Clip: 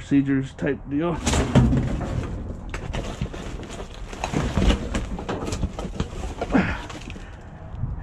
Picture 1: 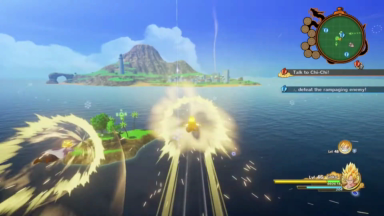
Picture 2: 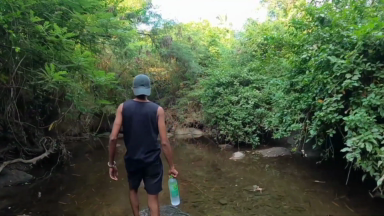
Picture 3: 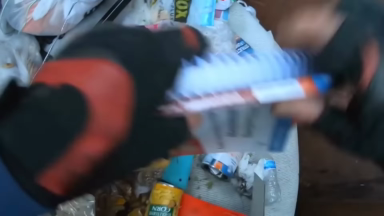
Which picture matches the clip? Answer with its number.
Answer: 3